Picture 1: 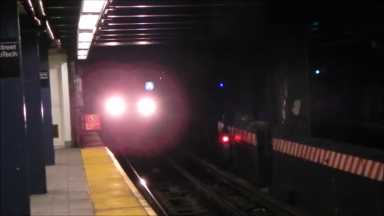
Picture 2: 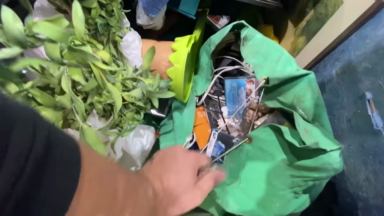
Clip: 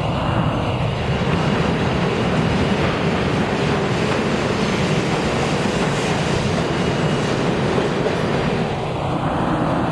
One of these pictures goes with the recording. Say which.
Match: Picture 1